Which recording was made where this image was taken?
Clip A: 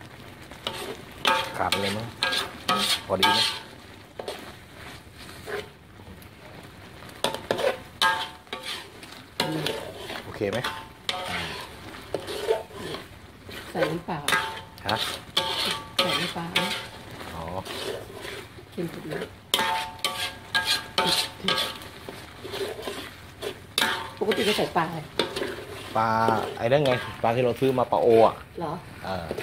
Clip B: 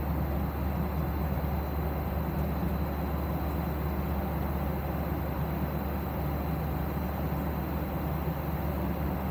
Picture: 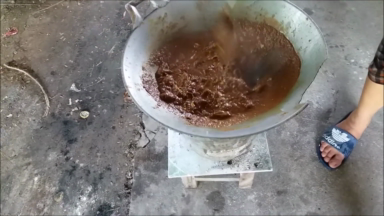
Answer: A